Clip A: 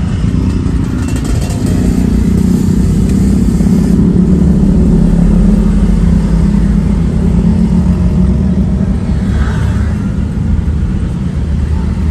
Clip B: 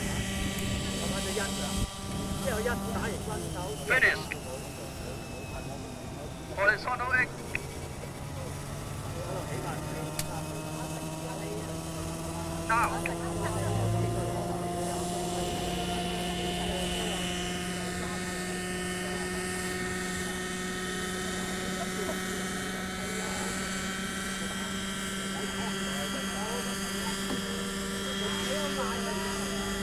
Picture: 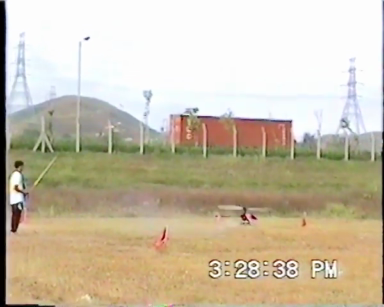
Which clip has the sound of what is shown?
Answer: B